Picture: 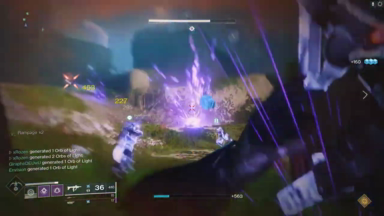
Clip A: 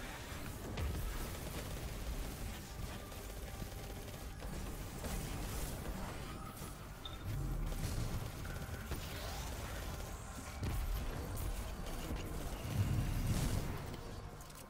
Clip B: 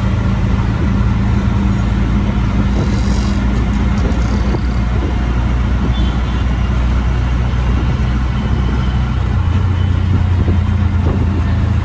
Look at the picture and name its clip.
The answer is A